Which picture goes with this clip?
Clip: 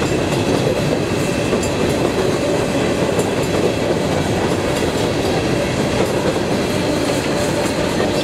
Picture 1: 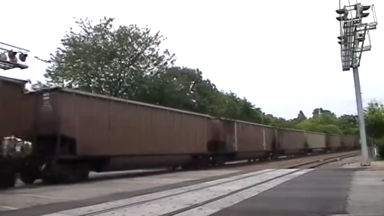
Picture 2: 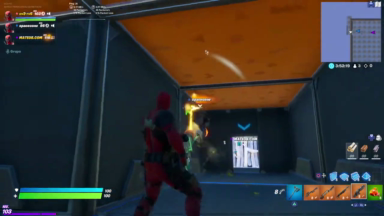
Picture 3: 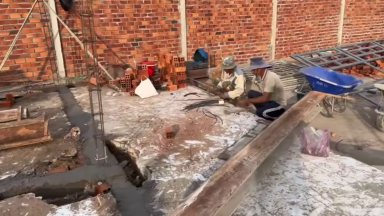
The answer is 1